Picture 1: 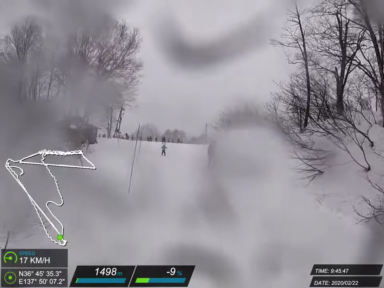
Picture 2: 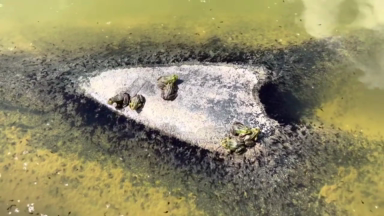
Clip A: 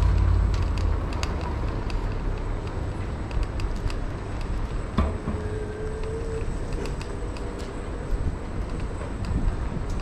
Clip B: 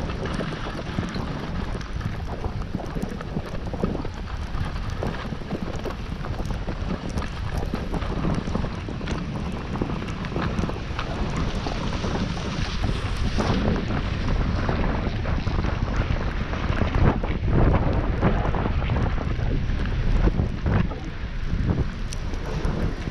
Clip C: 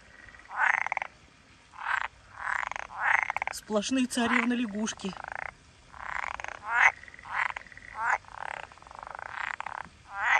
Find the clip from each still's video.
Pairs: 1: B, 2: C